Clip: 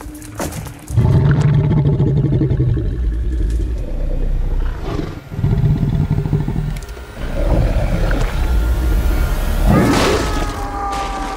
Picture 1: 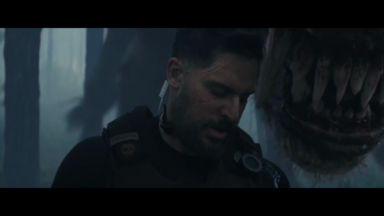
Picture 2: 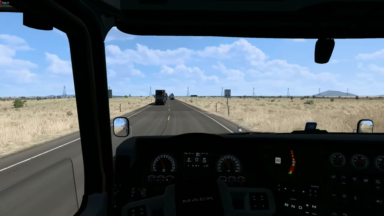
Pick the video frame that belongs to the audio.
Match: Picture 1